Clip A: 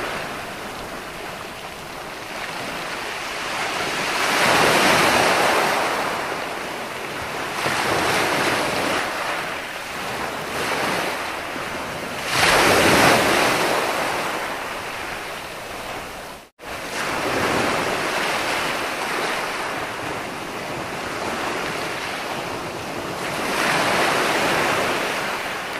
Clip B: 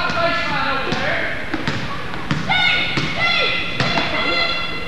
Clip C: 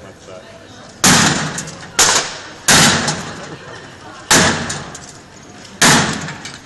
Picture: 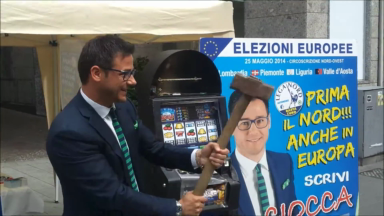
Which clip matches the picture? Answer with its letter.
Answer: C